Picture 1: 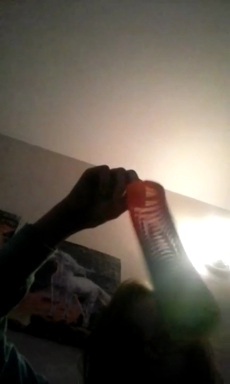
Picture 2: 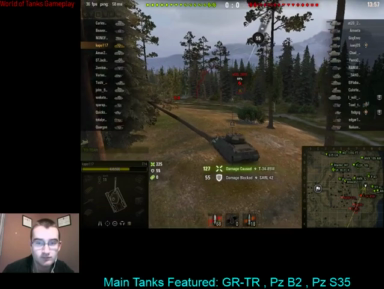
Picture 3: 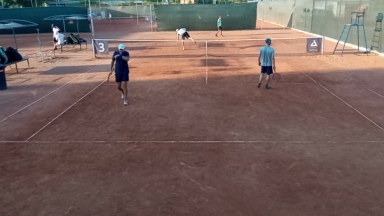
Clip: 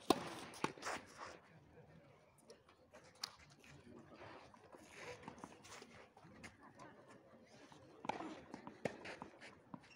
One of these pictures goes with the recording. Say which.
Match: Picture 3